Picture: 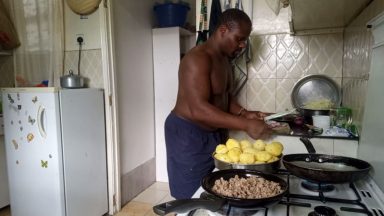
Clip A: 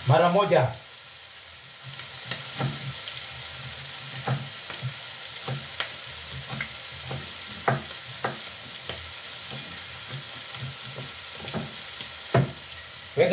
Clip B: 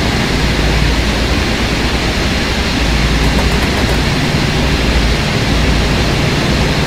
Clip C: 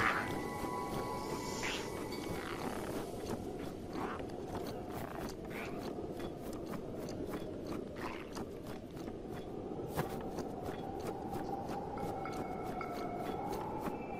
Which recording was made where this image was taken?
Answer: A